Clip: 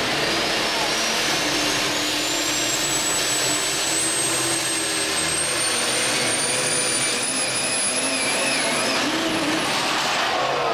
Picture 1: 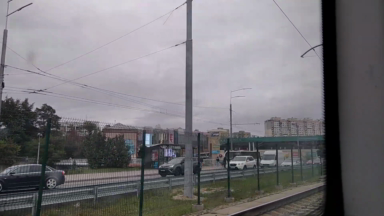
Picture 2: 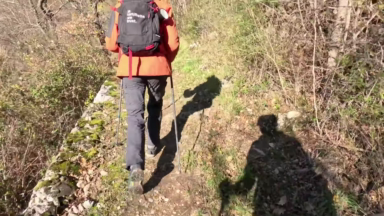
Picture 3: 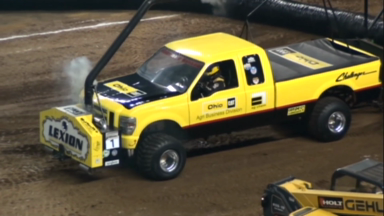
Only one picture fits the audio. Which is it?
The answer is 3